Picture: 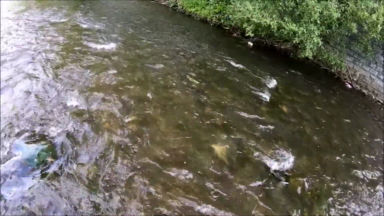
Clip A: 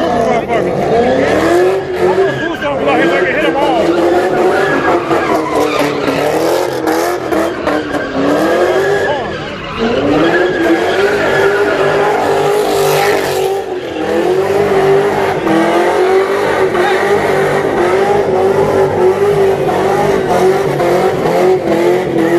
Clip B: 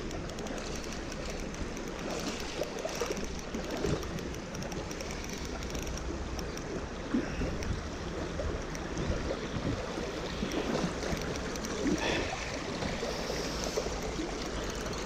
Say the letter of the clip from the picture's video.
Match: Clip B